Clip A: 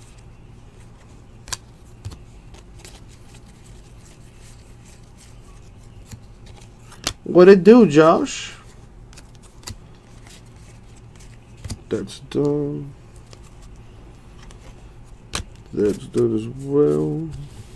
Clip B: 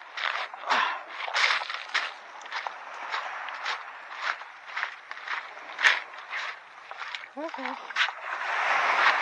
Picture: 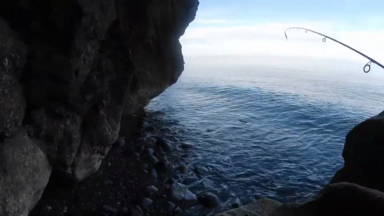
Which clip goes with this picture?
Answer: B